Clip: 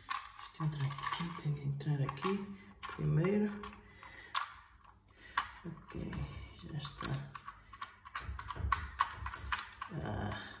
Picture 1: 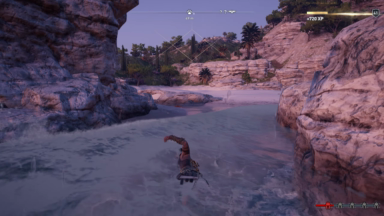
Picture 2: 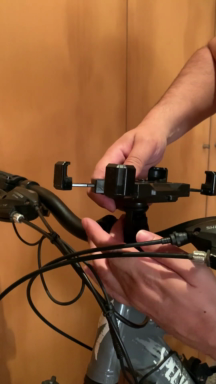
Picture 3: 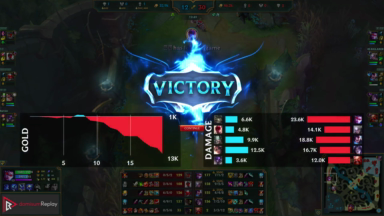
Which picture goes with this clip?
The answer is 2